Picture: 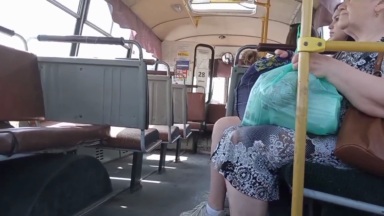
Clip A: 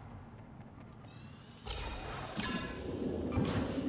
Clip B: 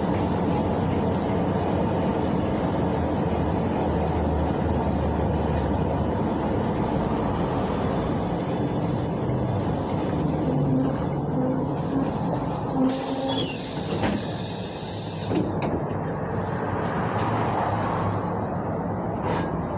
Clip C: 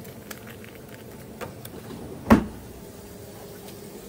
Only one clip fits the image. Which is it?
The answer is B